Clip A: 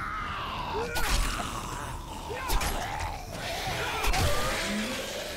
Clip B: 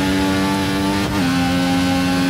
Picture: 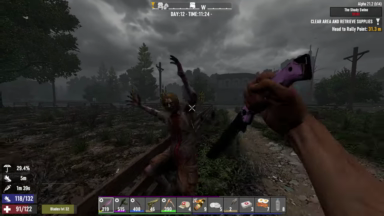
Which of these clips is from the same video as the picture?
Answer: A